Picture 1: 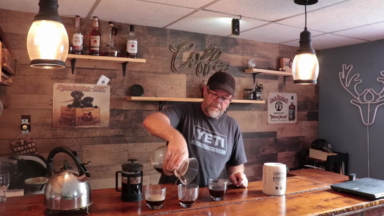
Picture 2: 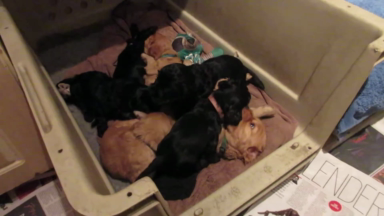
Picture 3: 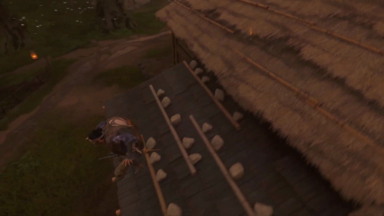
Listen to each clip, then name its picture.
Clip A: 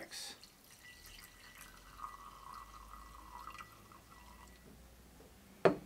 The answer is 1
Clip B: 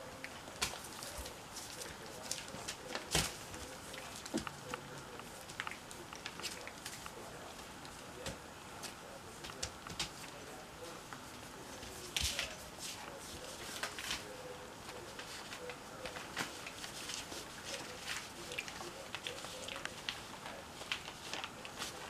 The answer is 2